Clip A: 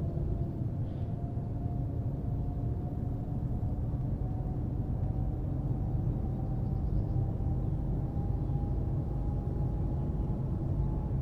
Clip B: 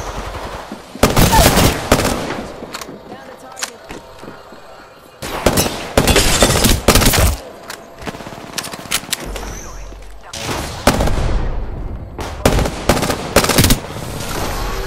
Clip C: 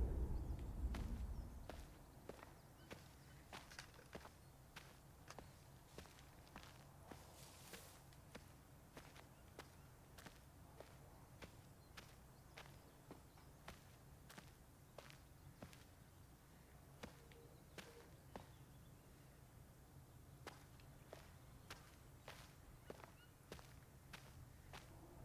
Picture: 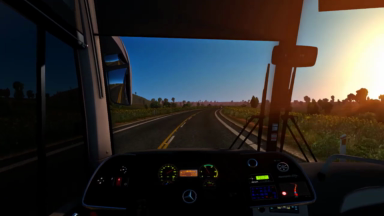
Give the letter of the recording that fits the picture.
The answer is A